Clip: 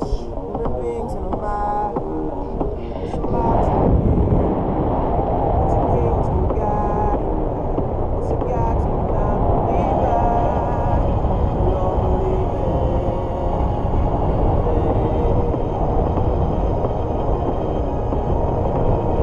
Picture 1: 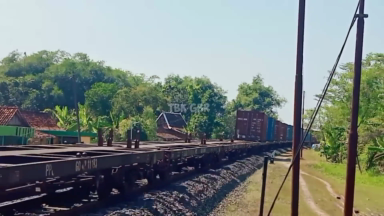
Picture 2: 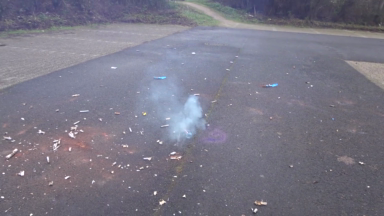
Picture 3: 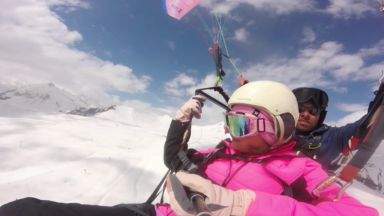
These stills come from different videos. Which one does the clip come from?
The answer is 3